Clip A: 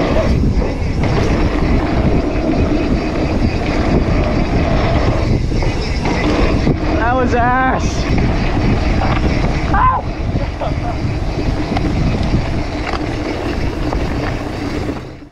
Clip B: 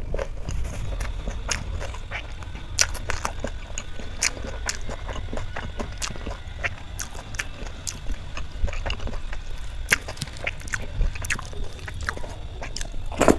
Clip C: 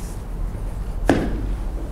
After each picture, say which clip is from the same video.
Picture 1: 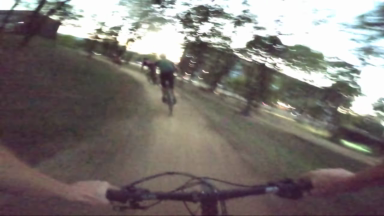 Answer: A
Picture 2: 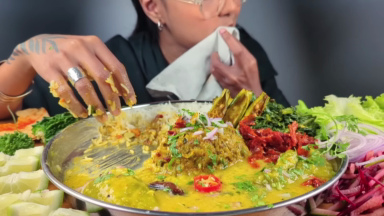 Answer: B